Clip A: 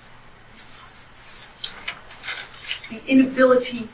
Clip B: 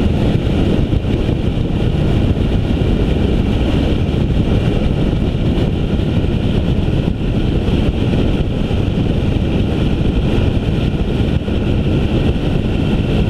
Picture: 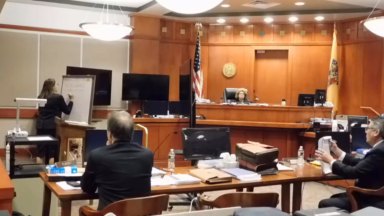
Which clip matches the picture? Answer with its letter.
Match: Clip A